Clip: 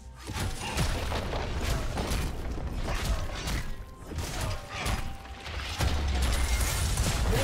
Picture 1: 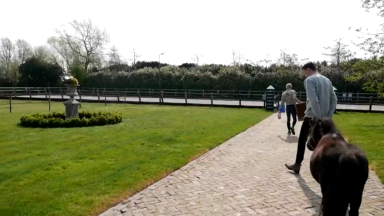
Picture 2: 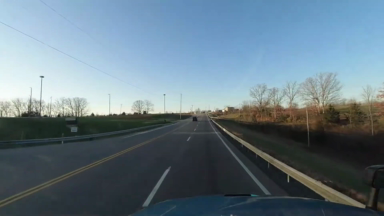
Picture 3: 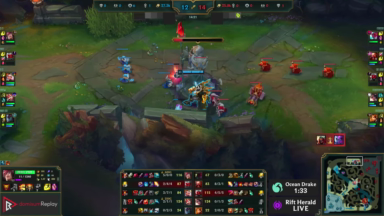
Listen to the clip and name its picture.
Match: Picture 3